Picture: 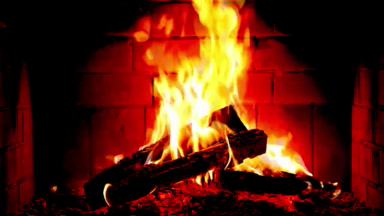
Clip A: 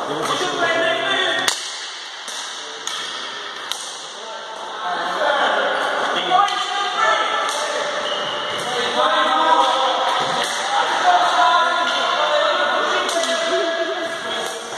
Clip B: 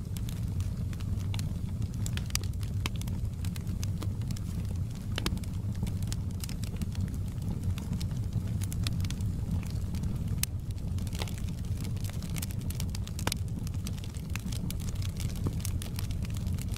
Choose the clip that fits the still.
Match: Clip B